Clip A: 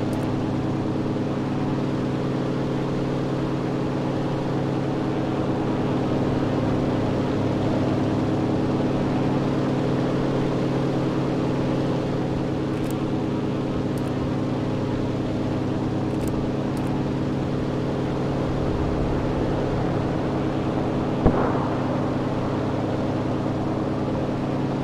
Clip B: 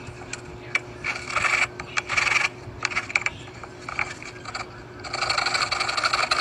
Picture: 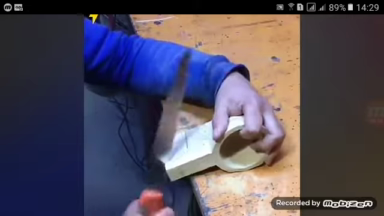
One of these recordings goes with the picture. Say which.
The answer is B